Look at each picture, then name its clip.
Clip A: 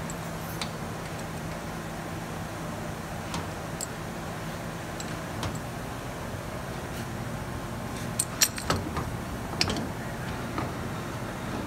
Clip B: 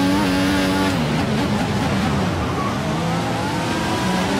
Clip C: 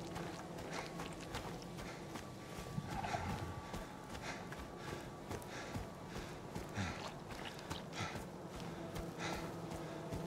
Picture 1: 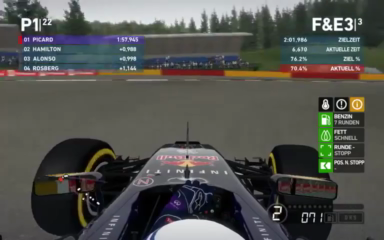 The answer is B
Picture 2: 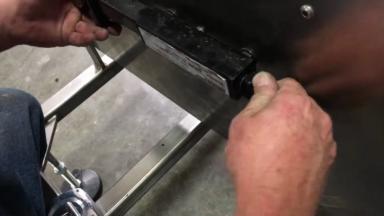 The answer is A